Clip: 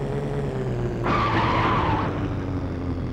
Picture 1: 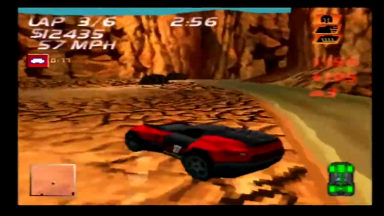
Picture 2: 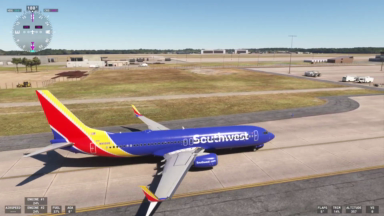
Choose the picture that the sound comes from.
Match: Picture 1